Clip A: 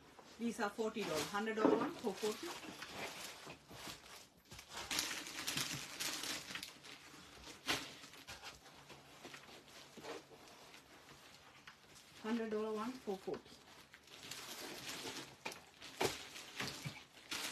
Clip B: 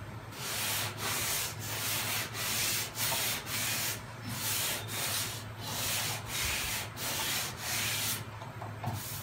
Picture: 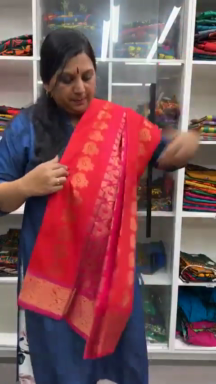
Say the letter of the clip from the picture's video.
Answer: A